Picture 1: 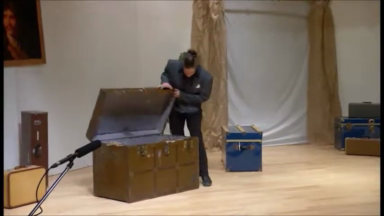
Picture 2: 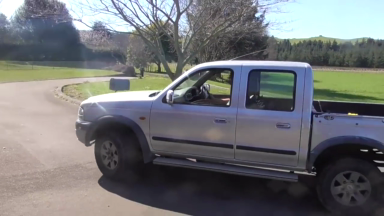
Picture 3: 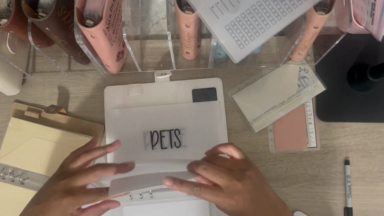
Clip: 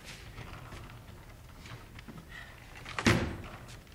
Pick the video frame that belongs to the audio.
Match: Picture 1